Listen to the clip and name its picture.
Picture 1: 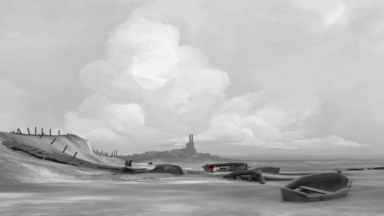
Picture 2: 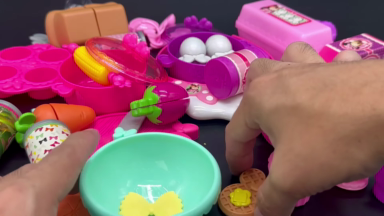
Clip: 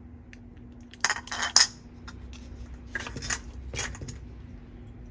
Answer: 2